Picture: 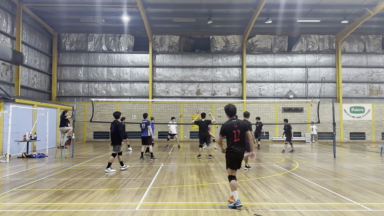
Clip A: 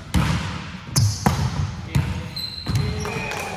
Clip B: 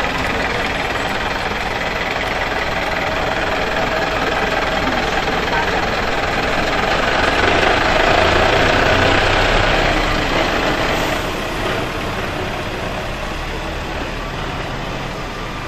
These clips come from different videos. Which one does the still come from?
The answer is A